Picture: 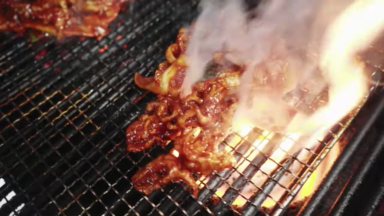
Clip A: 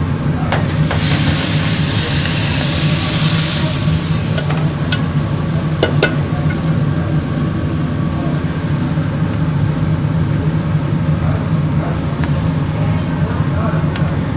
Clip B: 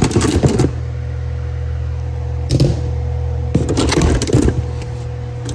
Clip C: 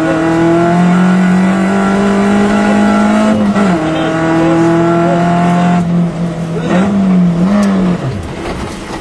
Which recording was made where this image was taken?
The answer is A